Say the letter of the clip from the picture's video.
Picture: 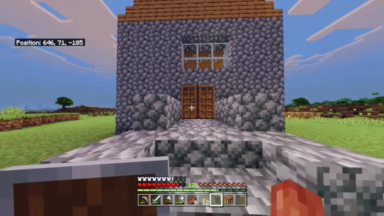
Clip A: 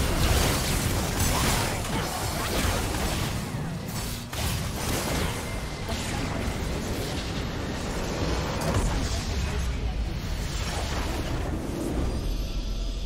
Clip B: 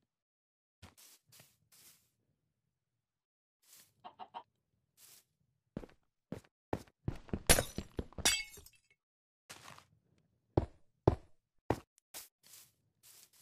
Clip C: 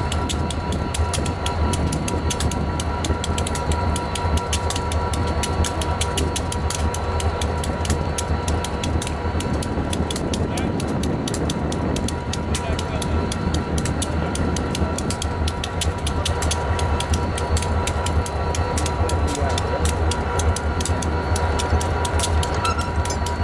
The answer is B